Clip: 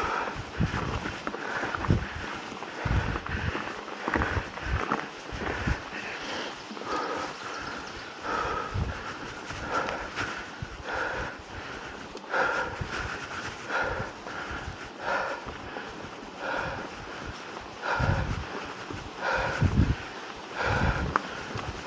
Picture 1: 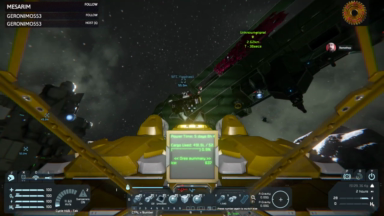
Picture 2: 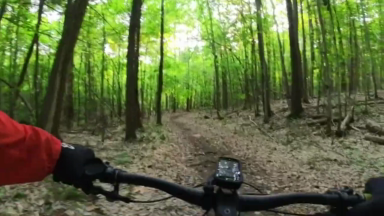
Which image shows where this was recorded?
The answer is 2